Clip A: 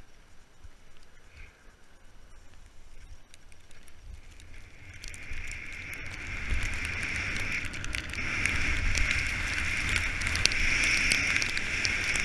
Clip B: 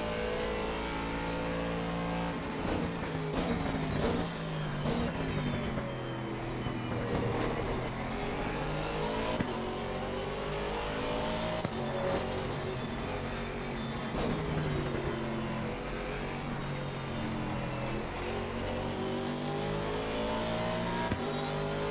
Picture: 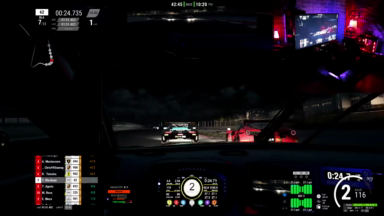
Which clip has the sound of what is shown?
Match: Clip B